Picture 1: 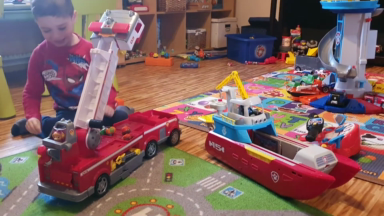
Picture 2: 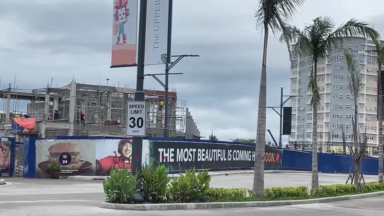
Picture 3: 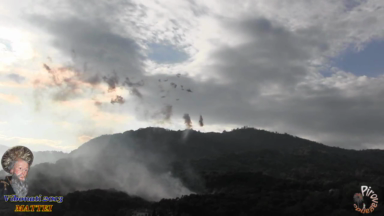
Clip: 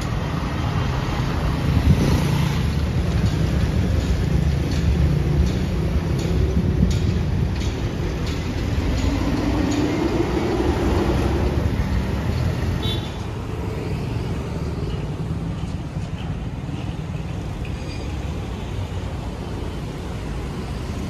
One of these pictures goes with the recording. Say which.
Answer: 2